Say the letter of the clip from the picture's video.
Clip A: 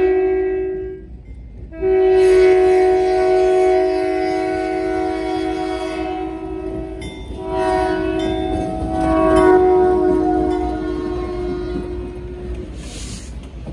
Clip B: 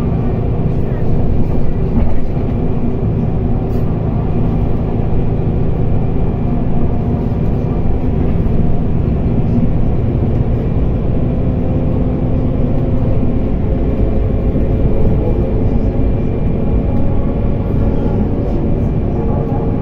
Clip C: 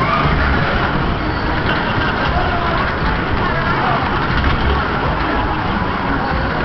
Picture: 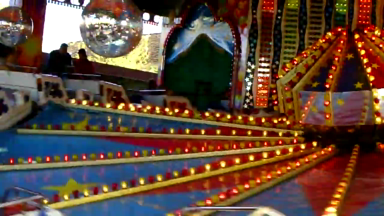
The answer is C